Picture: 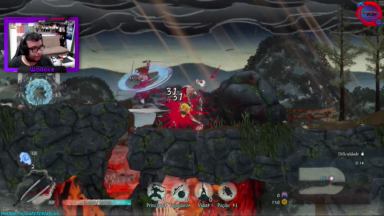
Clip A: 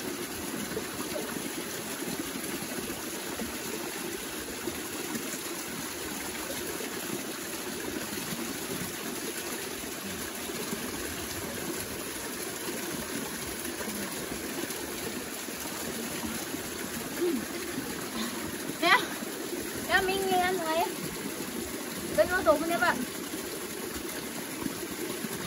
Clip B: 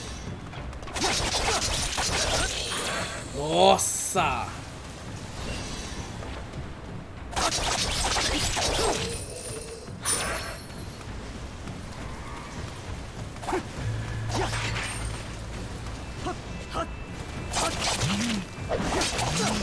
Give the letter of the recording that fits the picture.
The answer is B